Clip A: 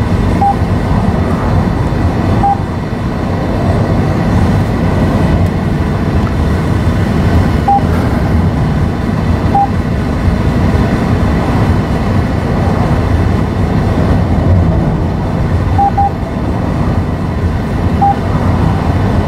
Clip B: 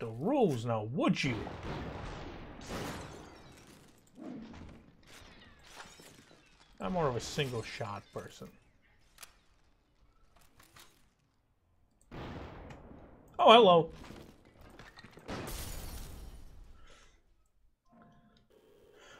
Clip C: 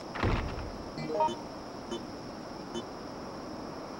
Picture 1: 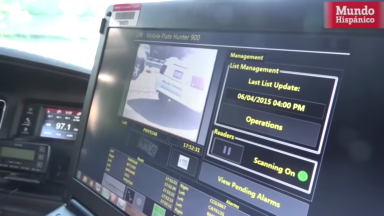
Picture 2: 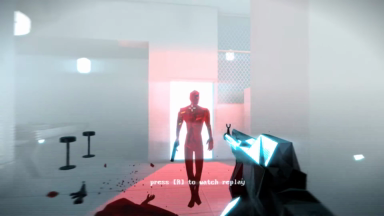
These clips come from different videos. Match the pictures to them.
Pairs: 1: A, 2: B